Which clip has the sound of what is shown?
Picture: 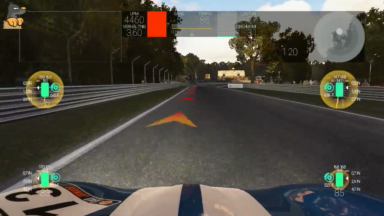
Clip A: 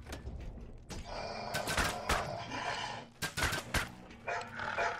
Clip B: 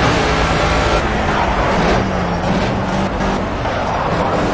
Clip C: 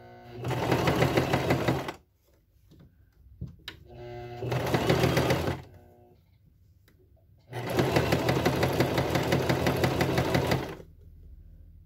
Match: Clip B